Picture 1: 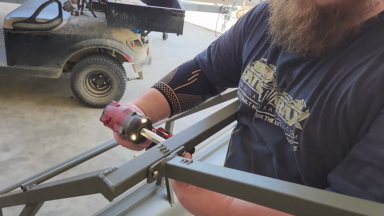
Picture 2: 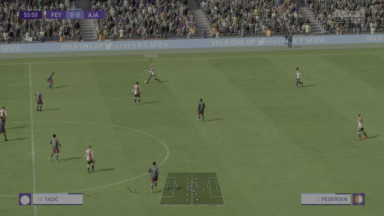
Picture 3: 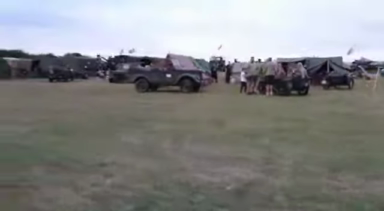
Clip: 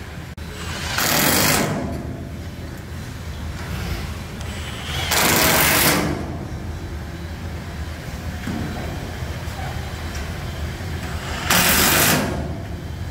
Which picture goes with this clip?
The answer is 1